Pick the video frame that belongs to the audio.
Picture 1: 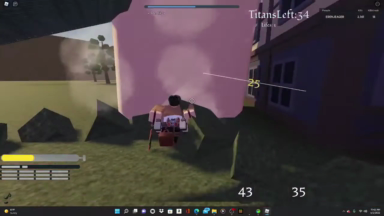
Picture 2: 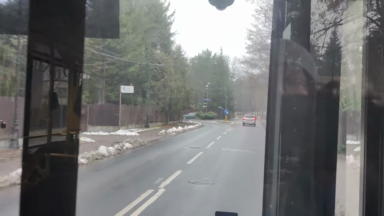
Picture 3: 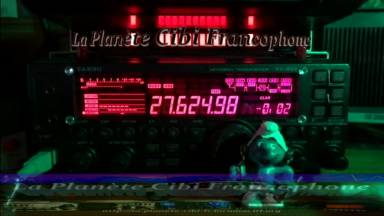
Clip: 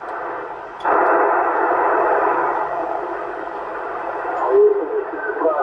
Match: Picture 3